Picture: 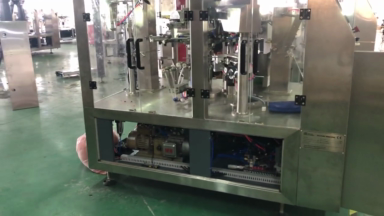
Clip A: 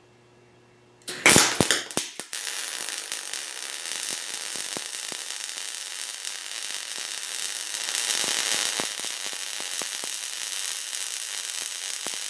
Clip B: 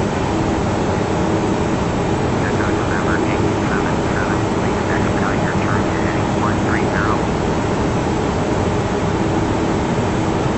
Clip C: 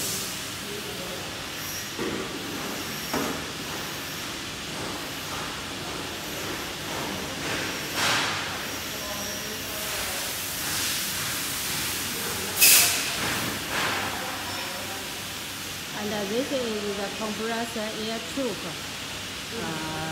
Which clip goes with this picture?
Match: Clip C